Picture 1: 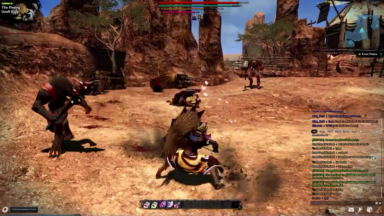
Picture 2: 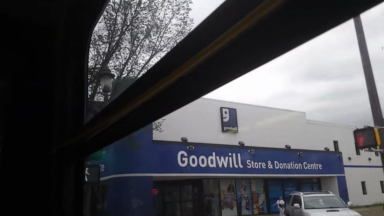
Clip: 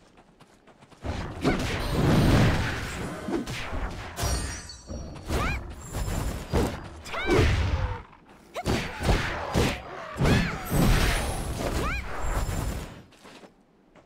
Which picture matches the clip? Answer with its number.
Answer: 1